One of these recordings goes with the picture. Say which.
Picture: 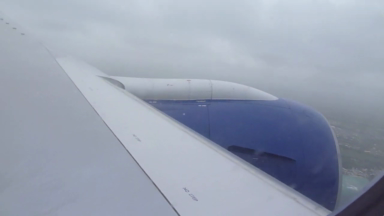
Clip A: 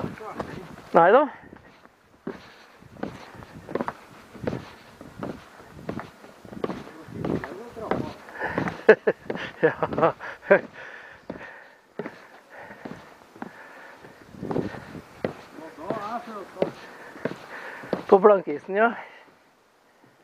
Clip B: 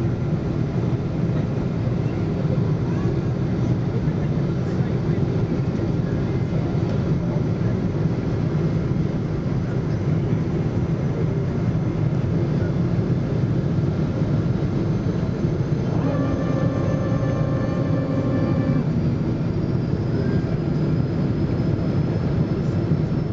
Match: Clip B